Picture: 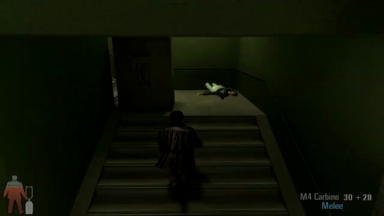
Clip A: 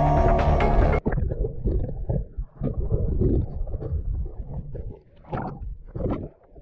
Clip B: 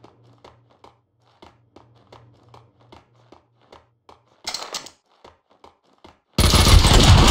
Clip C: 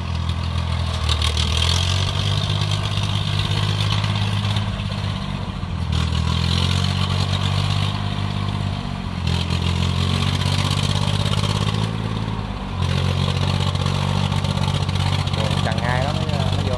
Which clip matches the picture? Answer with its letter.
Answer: B